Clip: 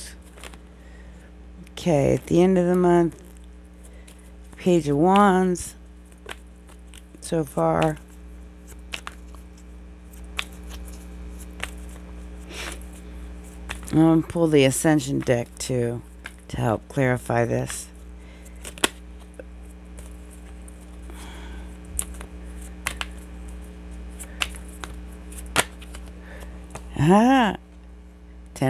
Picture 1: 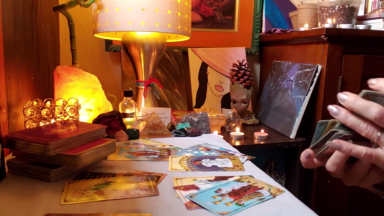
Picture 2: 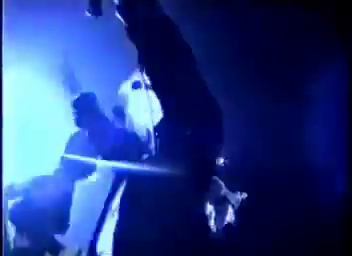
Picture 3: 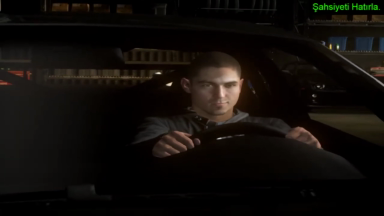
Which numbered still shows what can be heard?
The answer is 1